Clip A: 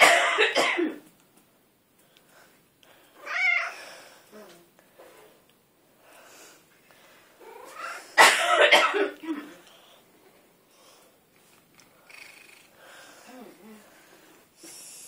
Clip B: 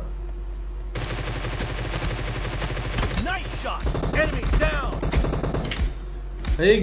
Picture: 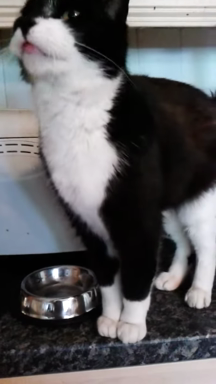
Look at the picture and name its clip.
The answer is A